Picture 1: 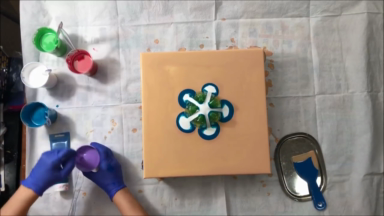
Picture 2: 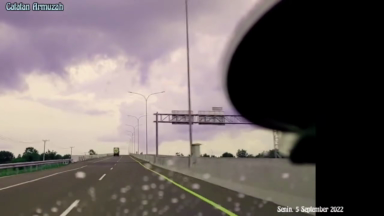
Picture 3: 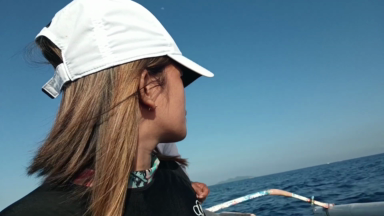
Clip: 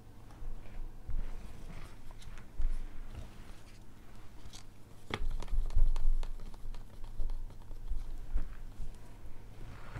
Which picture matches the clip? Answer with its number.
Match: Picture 1